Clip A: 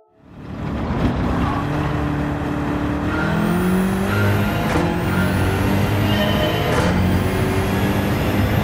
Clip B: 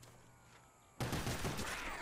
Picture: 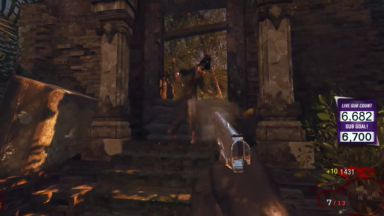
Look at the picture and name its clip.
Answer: B